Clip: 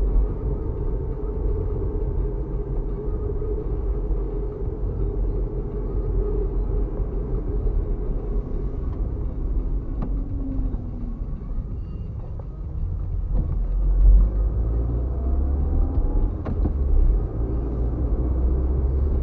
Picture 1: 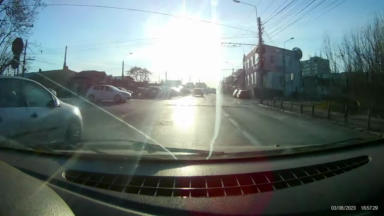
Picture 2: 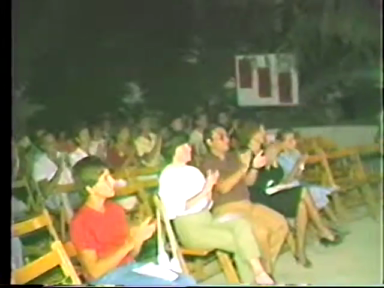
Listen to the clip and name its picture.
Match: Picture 1